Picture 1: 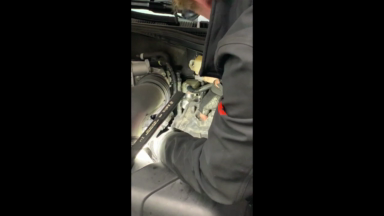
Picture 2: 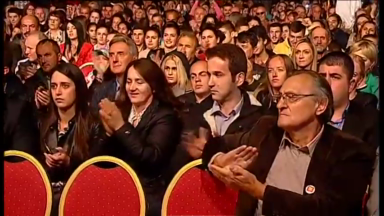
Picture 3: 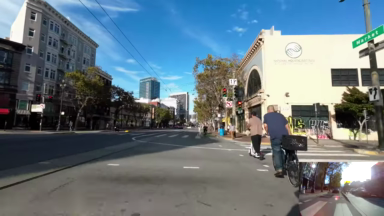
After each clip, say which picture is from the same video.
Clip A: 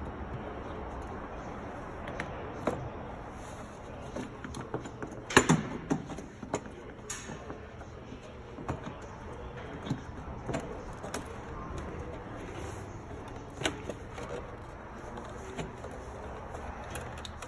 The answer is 1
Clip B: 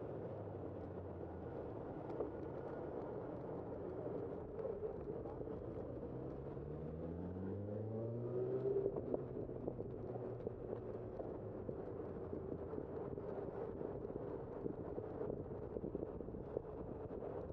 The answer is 3